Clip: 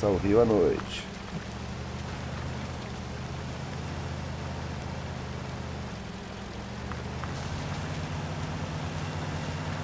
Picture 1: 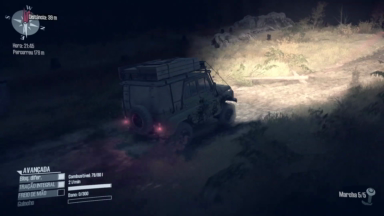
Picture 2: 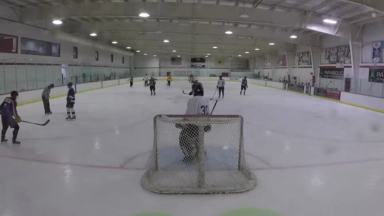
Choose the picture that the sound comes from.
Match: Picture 1